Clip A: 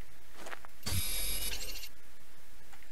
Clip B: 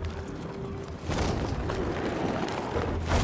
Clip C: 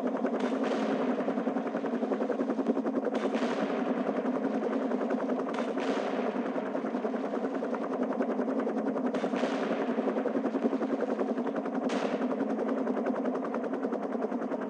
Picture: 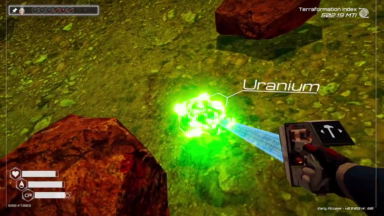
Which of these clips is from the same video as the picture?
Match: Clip A